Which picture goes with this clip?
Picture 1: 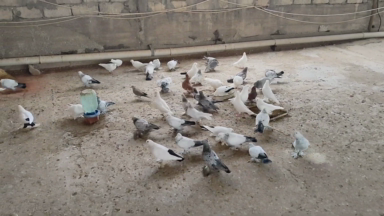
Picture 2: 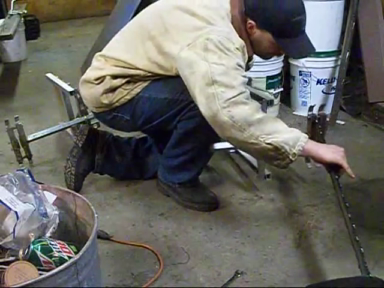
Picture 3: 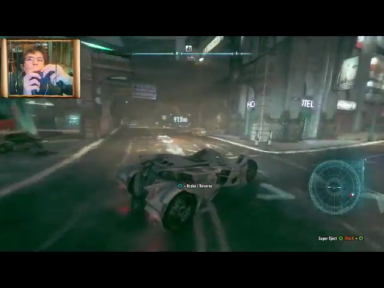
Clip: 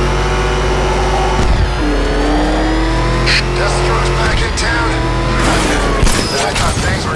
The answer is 3